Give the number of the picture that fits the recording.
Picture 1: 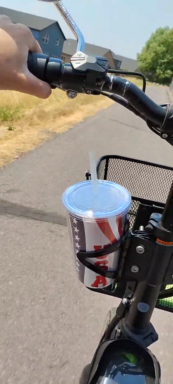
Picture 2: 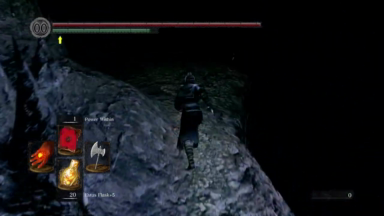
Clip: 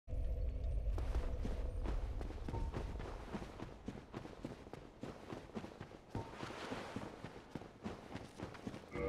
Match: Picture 2